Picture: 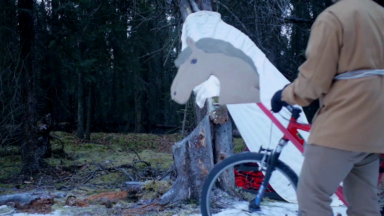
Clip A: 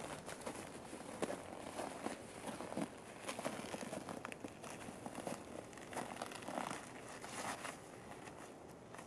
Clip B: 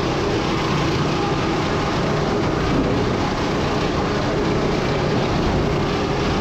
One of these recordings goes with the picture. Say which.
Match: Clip A